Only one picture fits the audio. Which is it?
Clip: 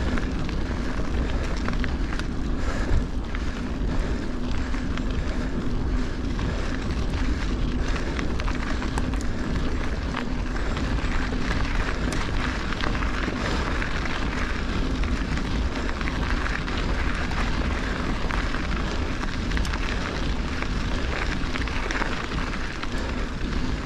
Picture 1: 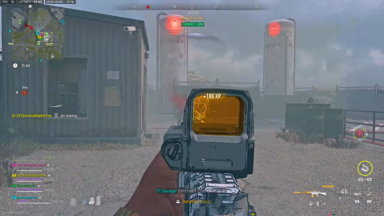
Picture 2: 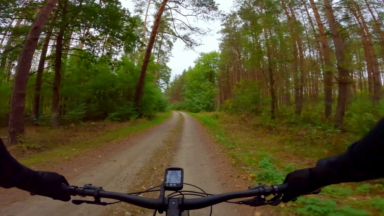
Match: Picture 2